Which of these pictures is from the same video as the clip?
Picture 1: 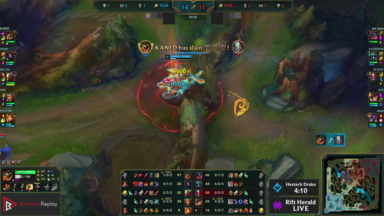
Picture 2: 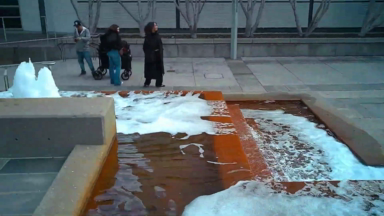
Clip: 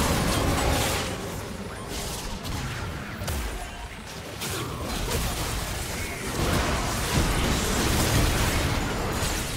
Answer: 1